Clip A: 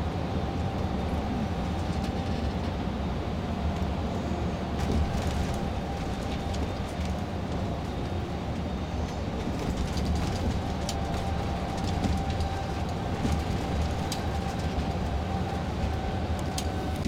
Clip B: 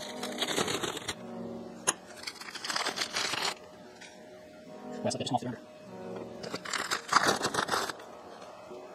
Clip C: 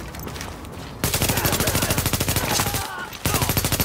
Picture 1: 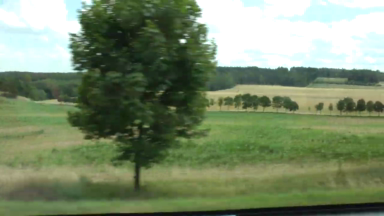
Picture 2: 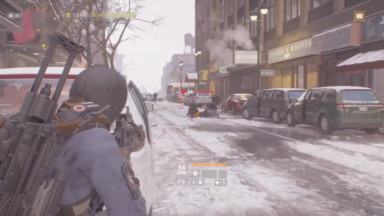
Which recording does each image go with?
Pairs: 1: A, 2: C